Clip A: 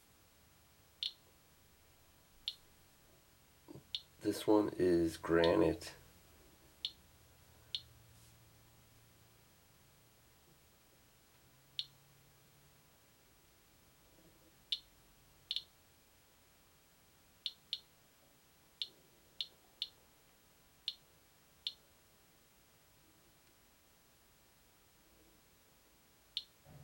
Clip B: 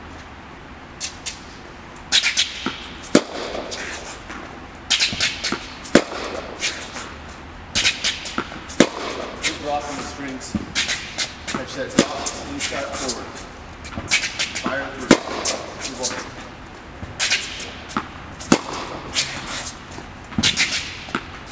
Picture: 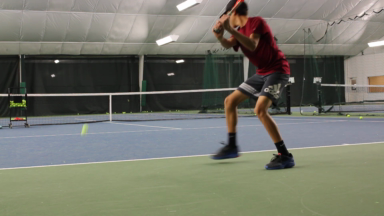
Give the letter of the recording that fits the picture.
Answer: B